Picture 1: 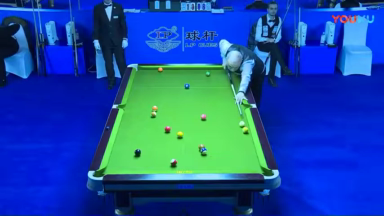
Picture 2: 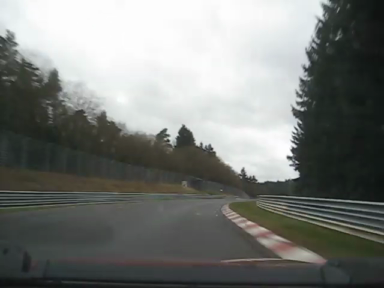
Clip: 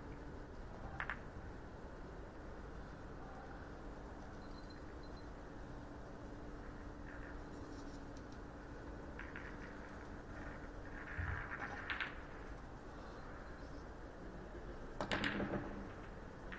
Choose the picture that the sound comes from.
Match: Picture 1